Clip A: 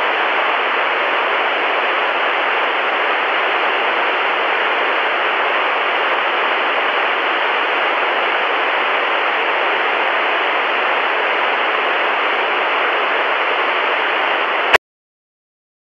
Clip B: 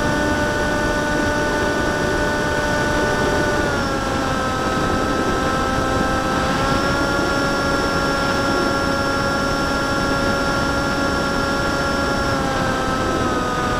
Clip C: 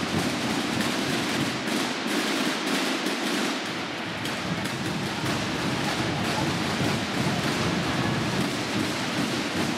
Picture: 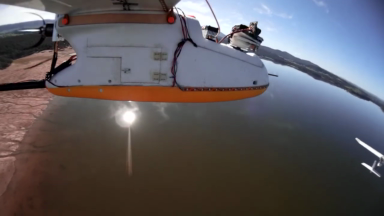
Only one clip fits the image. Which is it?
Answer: B